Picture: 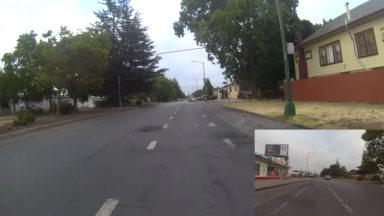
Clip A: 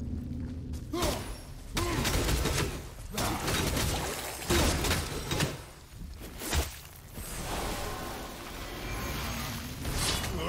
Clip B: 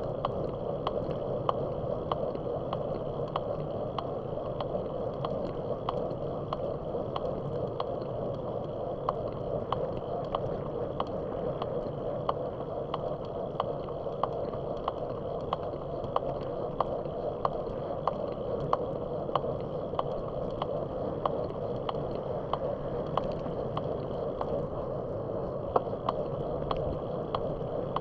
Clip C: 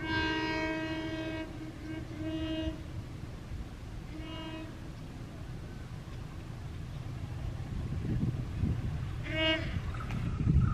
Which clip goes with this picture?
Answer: B